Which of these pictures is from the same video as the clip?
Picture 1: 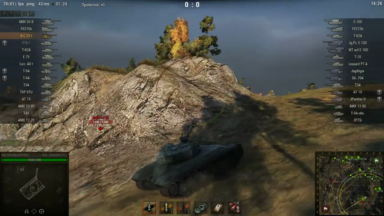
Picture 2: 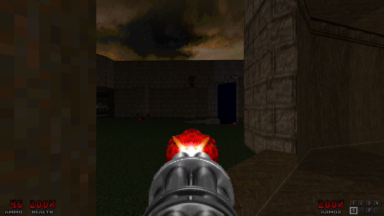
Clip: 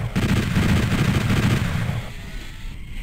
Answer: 2